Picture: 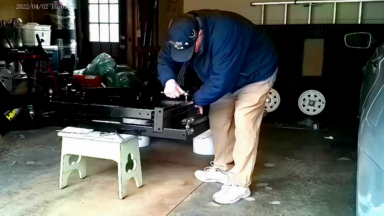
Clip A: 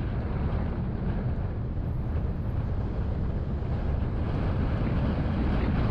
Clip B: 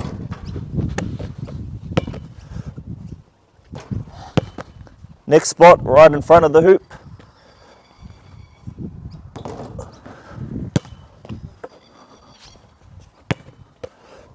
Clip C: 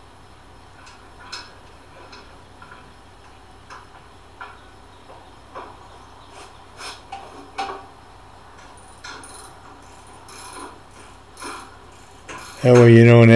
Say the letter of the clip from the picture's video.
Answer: C